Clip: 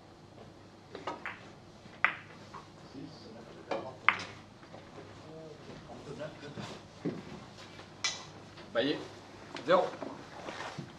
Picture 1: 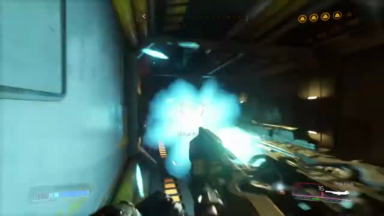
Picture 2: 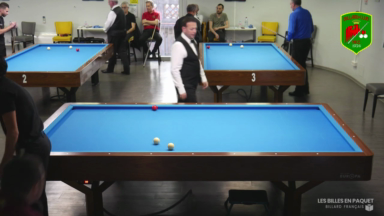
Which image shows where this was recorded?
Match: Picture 2